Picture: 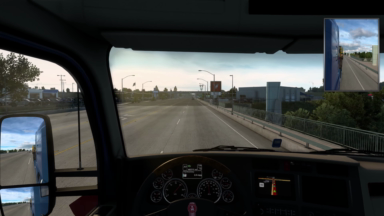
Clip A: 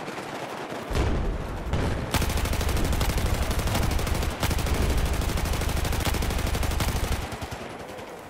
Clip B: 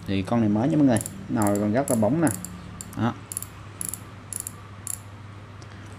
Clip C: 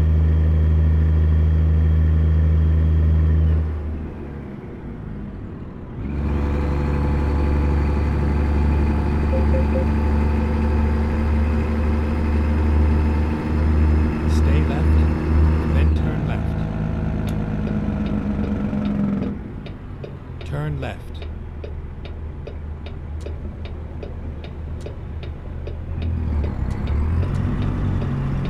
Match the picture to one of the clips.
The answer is C